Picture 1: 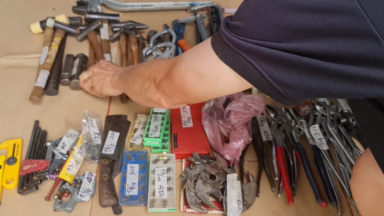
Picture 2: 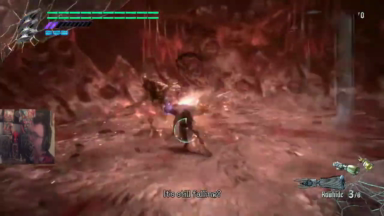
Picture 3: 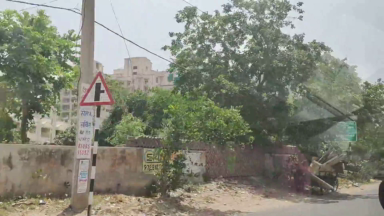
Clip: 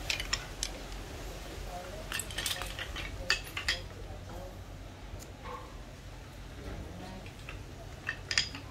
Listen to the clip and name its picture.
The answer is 1